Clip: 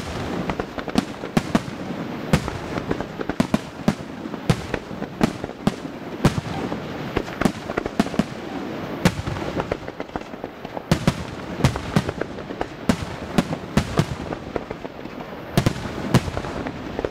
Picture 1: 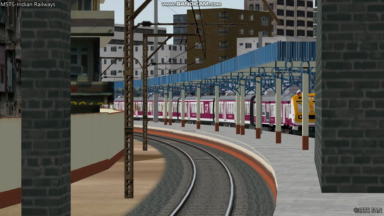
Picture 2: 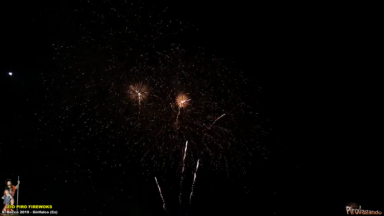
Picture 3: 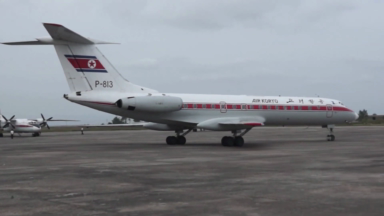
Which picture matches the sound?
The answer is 2